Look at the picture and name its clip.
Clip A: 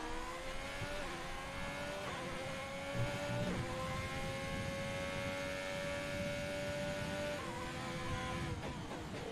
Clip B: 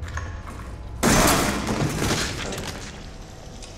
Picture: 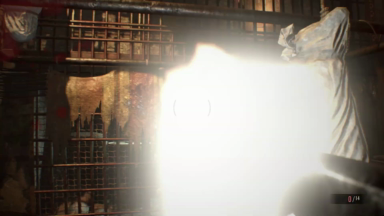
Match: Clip B